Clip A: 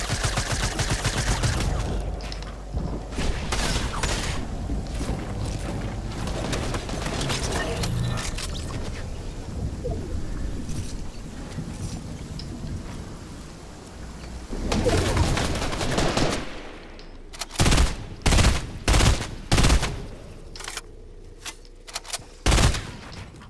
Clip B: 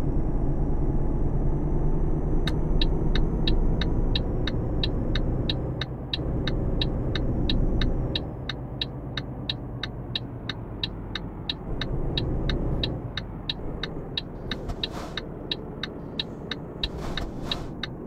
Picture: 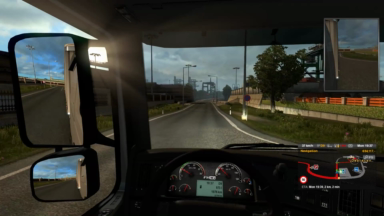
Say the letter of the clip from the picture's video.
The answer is B